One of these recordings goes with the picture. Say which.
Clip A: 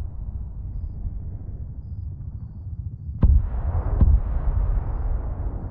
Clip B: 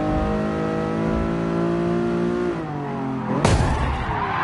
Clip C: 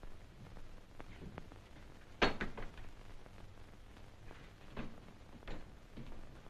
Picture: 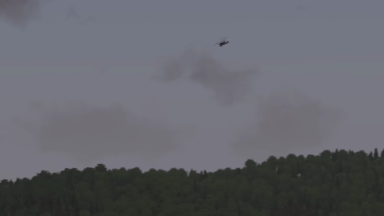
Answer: A